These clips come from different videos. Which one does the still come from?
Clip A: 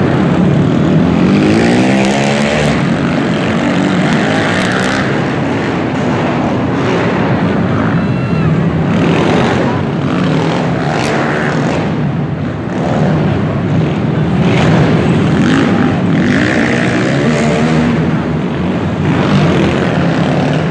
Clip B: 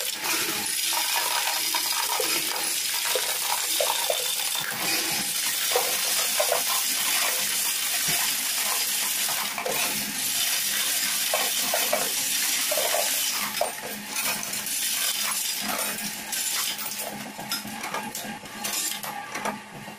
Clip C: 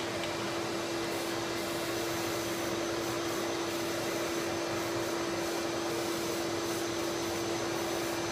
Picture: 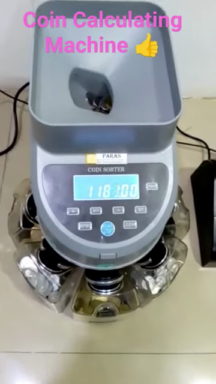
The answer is B